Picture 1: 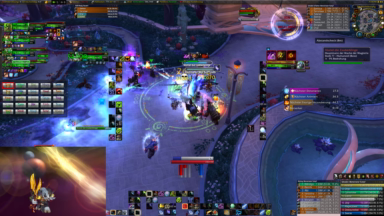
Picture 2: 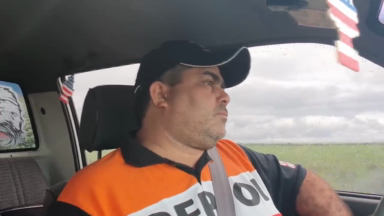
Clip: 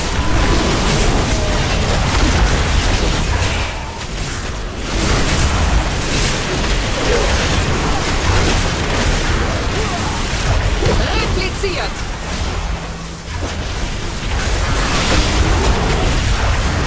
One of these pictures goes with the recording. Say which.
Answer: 1